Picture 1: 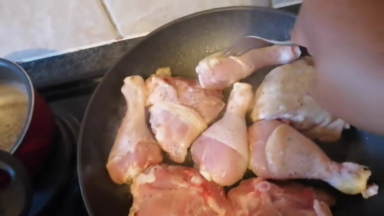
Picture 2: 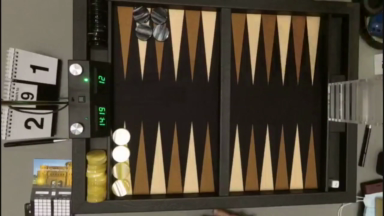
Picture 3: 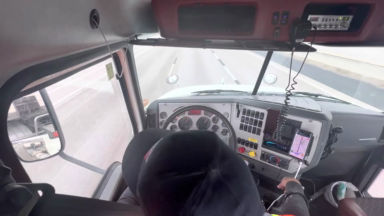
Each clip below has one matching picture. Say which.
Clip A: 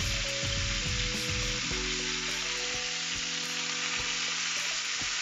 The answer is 1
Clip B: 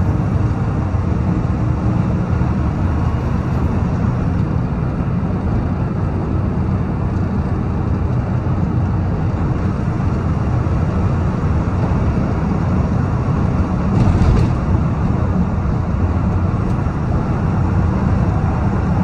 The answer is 3